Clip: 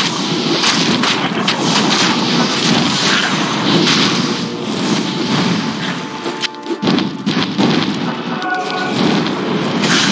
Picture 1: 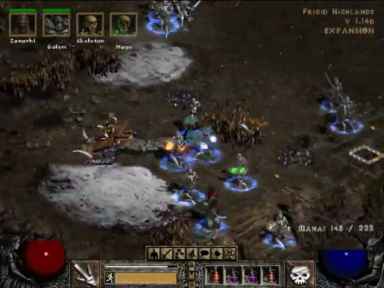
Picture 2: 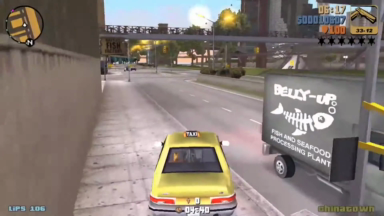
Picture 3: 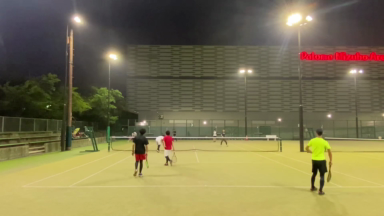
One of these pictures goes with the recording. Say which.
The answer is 1